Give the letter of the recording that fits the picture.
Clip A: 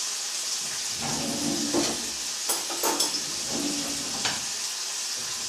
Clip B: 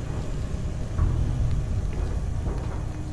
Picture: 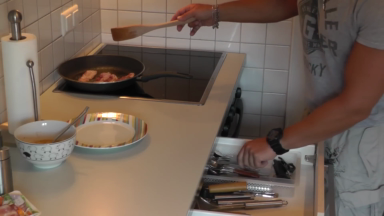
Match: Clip A